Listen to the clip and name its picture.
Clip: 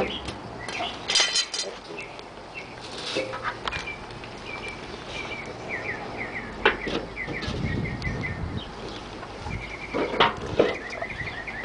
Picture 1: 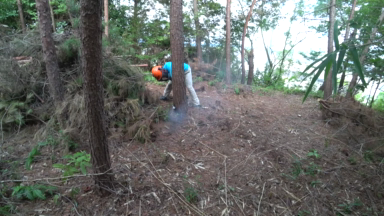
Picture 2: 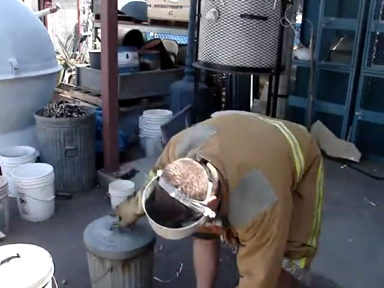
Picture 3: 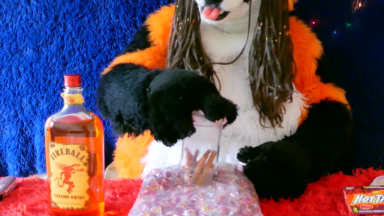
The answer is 2